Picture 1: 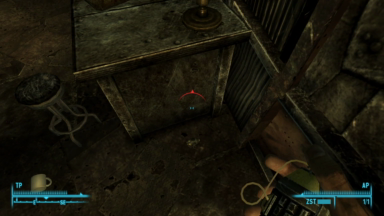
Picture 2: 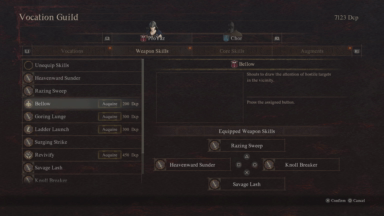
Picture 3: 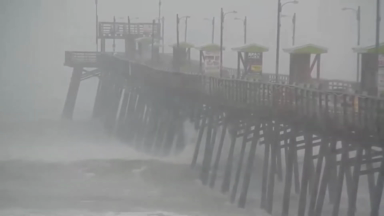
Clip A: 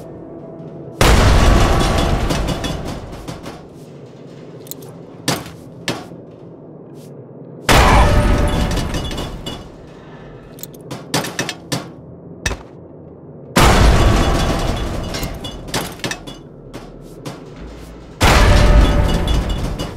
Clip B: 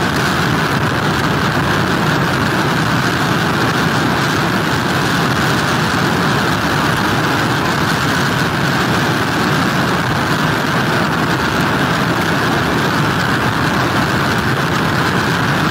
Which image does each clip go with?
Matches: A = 1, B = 3